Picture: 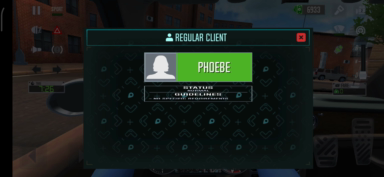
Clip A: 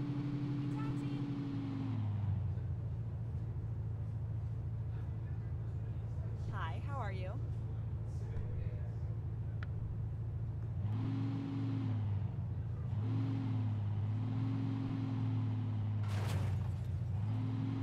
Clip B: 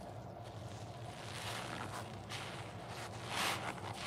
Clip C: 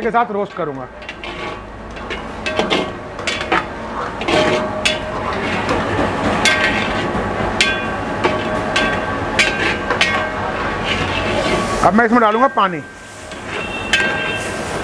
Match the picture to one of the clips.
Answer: A